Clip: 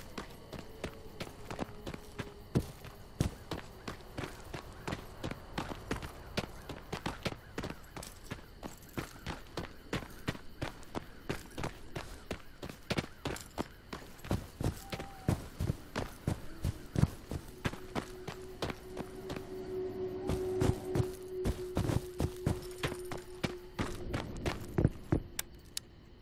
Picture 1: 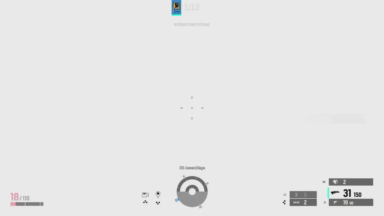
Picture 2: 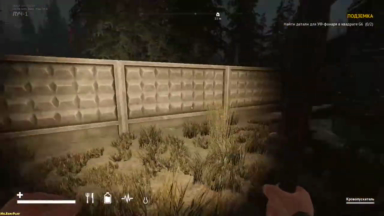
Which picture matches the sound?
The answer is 2